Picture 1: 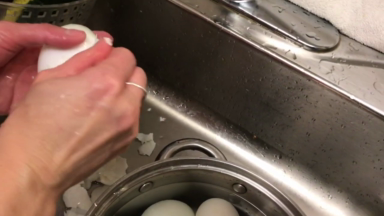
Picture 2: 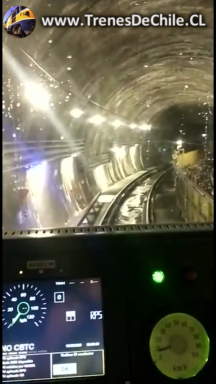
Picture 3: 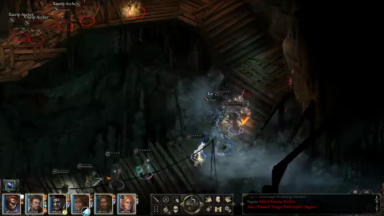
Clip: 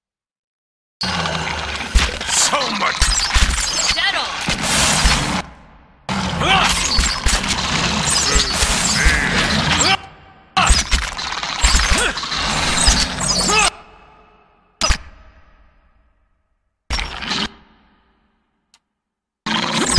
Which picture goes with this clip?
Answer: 3